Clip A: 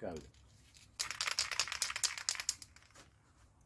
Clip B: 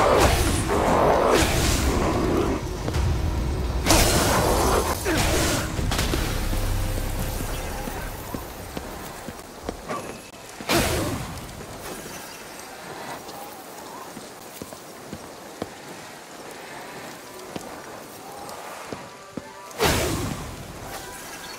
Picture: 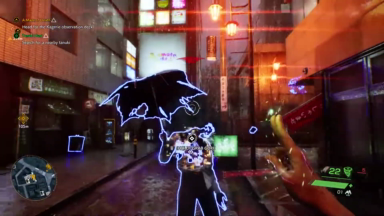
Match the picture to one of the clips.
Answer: B